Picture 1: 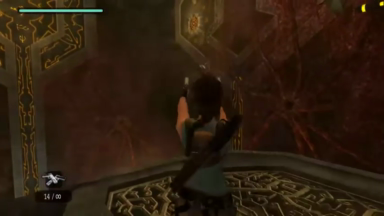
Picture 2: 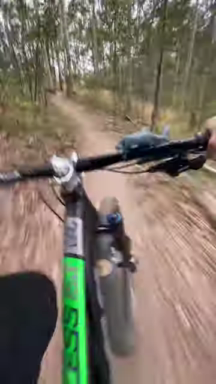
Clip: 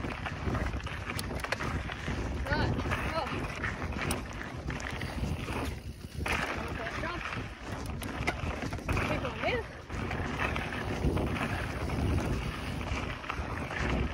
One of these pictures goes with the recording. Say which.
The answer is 2